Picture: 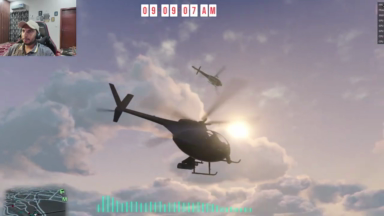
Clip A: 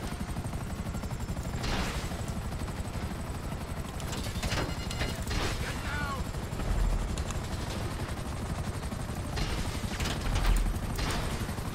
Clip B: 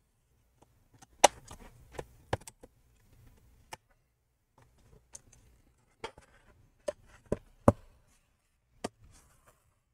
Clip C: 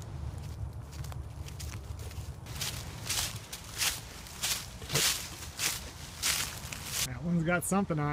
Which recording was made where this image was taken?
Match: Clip A